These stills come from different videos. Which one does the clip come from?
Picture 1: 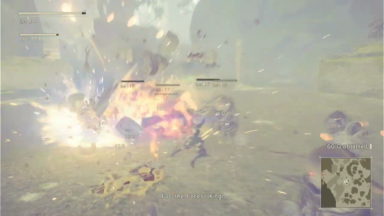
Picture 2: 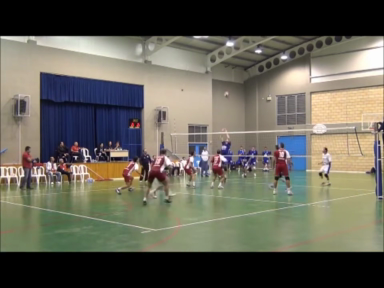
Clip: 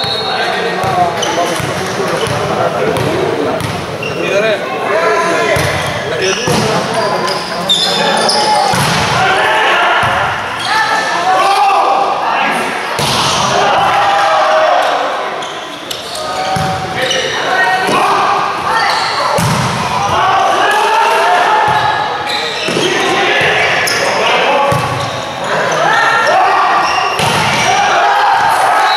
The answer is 2